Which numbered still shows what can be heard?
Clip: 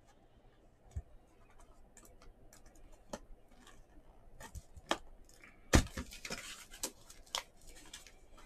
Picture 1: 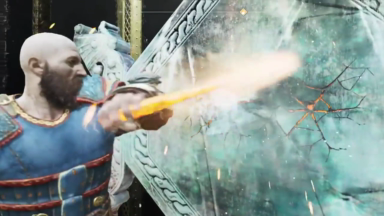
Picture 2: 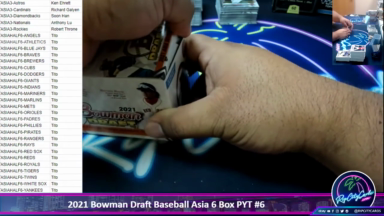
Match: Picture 2